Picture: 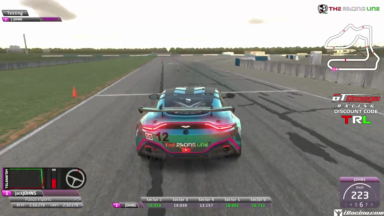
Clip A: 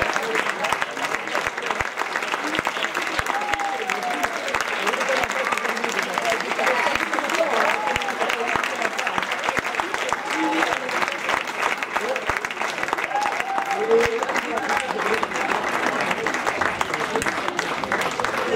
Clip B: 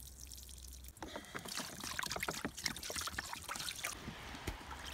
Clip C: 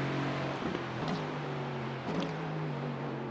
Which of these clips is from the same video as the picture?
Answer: C